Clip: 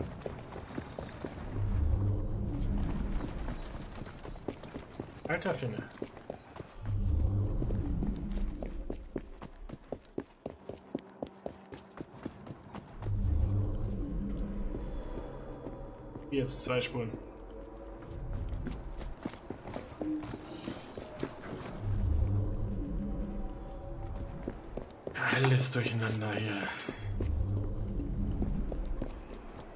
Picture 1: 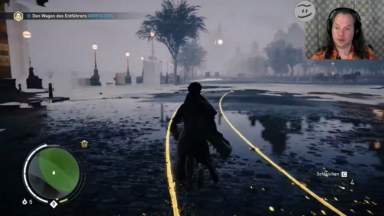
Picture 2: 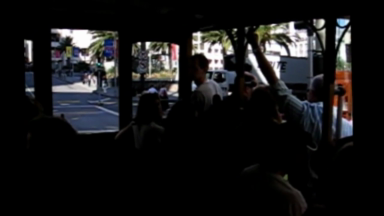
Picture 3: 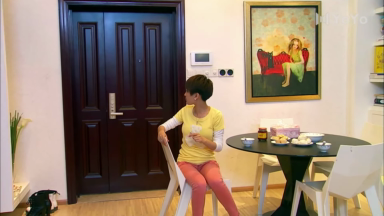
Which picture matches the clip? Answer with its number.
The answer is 1